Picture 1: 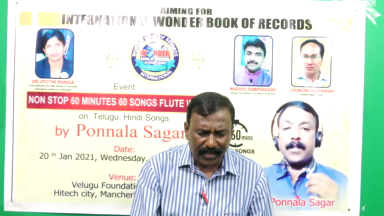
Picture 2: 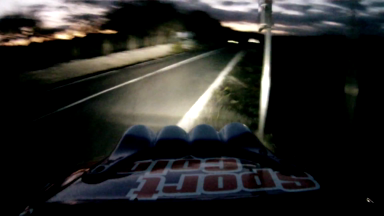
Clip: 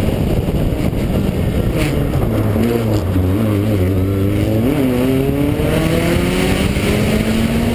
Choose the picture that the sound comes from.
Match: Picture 2